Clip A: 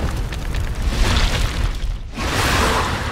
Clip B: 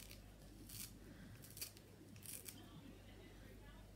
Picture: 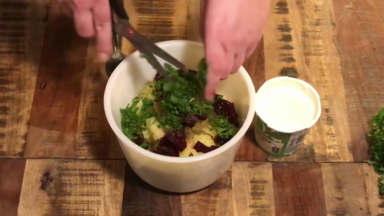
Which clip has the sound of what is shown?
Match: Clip B